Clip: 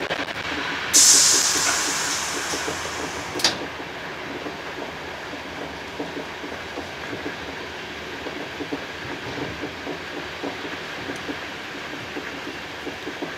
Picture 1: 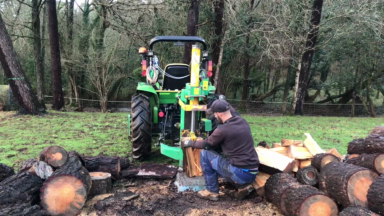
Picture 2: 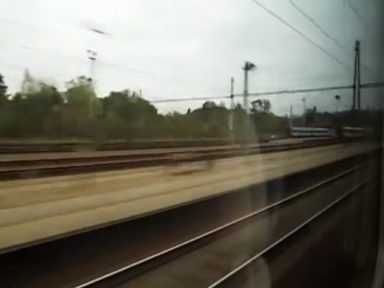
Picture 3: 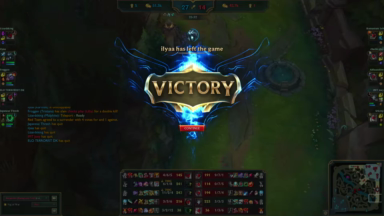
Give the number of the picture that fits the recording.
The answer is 2